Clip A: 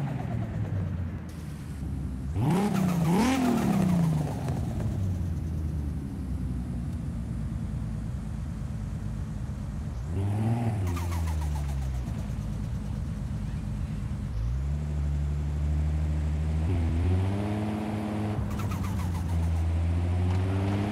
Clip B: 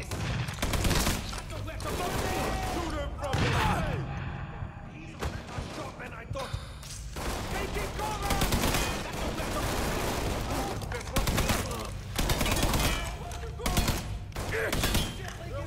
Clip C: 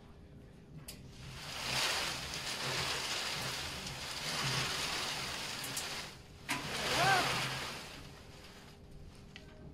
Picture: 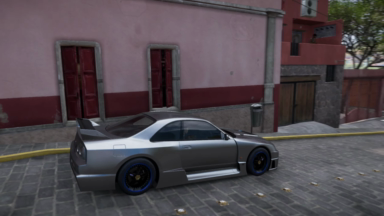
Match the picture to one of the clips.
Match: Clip A